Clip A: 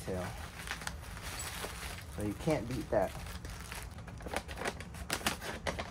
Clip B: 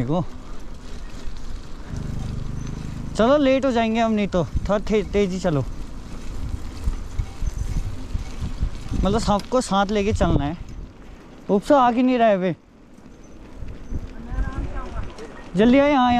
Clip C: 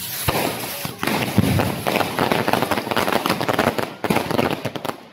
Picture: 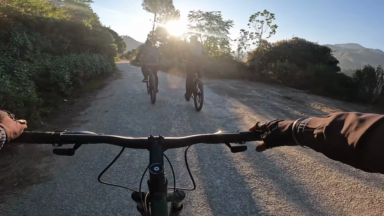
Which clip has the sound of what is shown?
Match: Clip B